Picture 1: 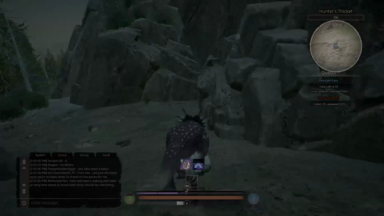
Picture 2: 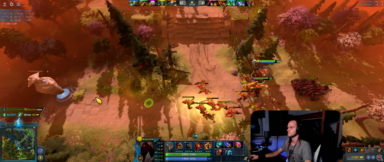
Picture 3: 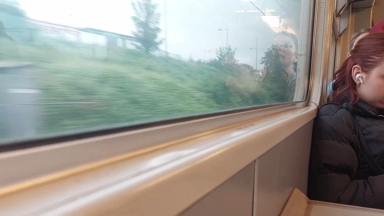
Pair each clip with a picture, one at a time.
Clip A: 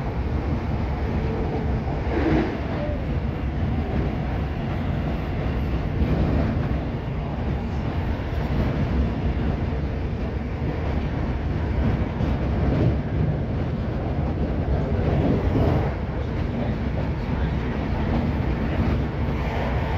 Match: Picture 3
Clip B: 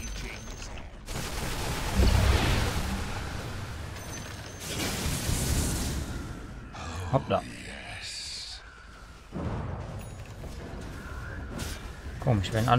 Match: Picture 2